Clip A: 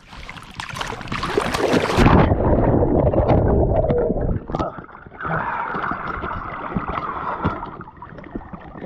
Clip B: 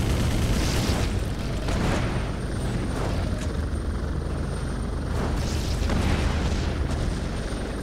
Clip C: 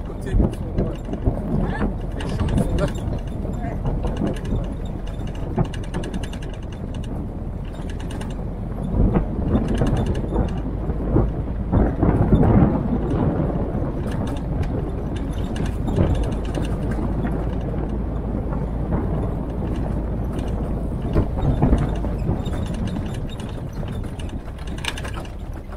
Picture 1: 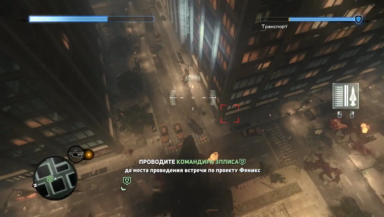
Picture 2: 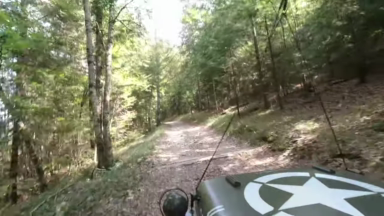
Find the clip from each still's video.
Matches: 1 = B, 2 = C